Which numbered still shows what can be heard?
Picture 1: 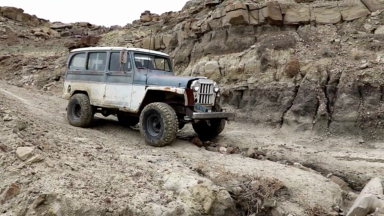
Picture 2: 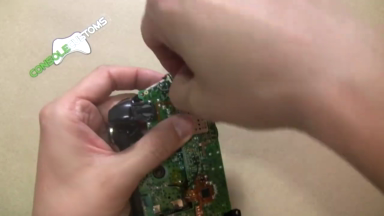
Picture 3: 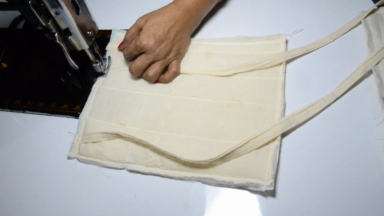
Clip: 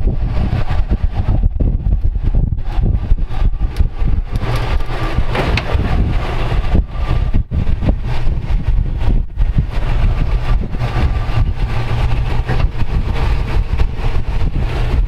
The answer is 1